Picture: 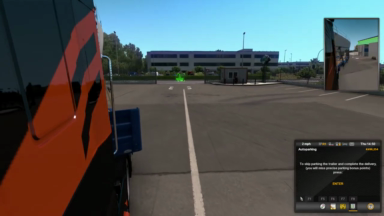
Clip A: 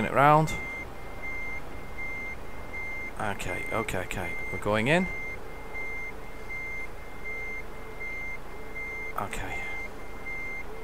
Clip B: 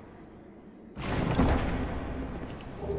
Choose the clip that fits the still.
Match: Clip A